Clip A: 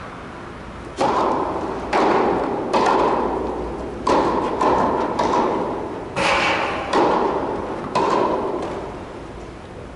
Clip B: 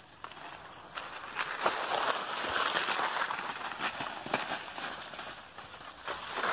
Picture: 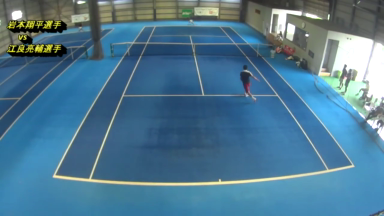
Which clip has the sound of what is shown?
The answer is A